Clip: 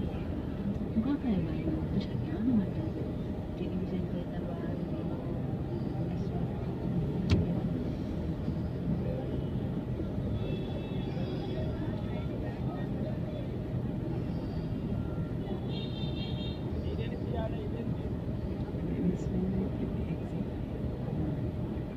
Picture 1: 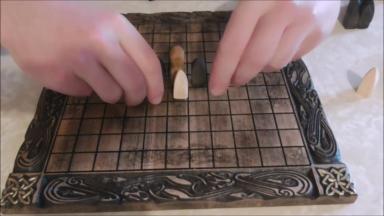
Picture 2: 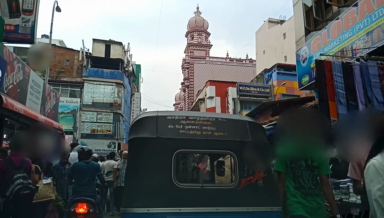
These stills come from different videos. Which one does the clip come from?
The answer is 2